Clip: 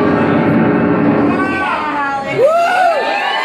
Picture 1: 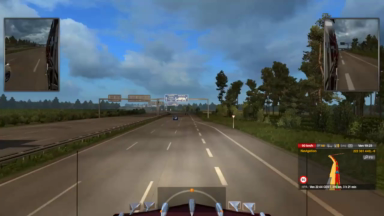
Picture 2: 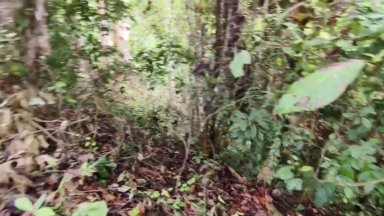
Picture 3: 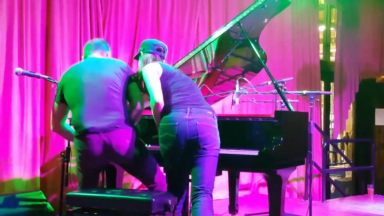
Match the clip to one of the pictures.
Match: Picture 3